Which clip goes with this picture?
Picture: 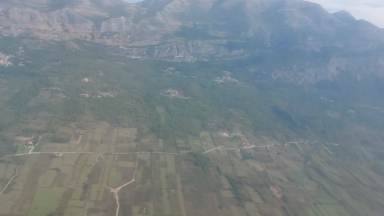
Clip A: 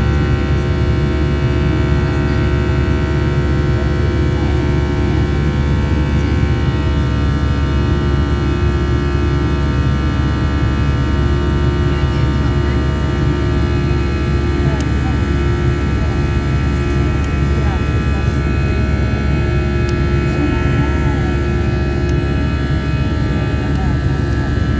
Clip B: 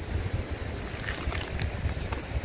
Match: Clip A